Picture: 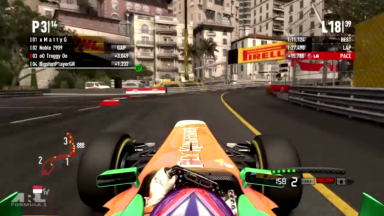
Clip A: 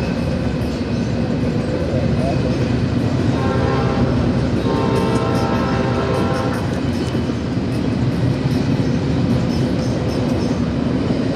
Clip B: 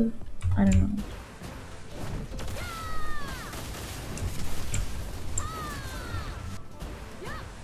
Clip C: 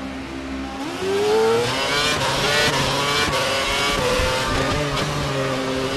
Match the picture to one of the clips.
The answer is C